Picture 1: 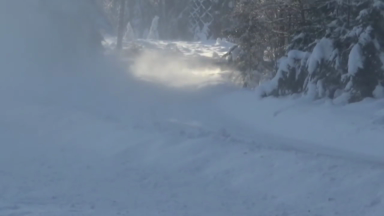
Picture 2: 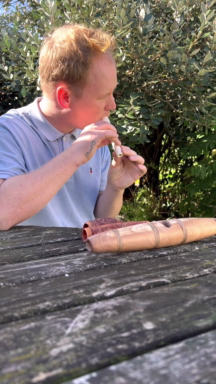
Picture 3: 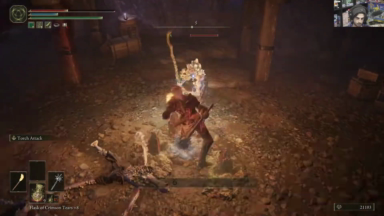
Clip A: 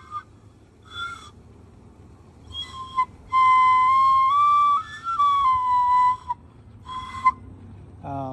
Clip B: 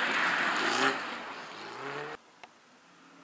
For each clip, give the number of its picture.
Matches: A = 2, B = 1